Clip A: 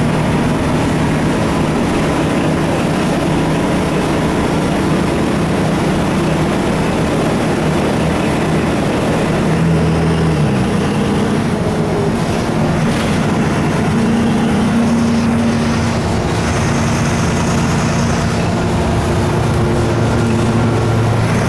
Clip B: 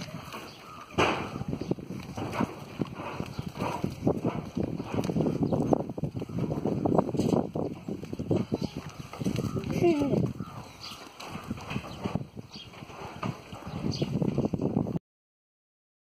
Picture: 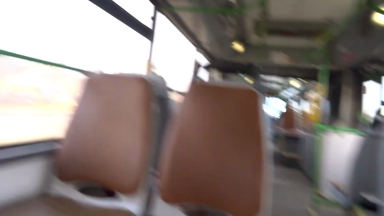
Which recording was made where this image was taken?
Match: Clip A